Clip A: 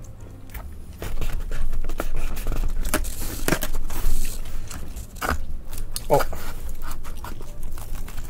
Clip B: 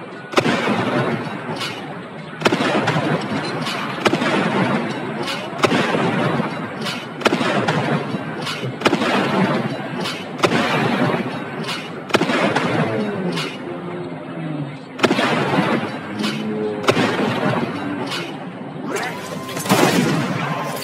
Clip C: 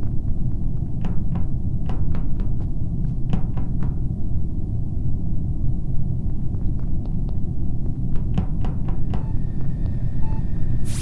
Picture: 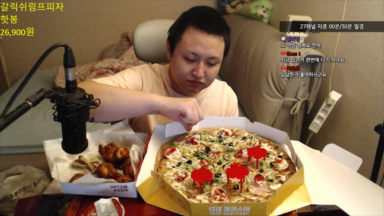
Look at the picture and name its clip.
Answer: A